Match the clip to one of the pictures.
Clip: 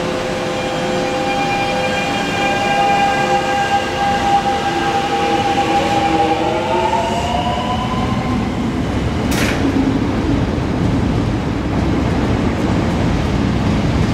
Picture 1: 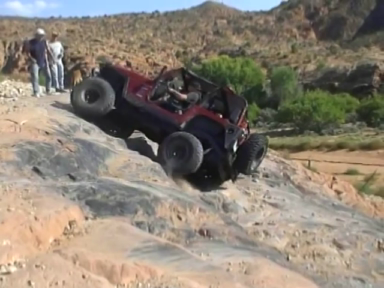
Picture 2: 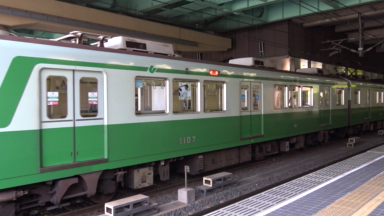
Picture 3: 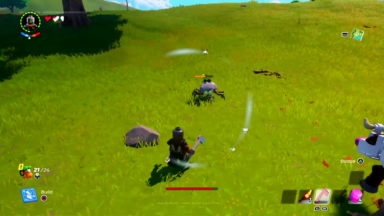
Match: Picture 2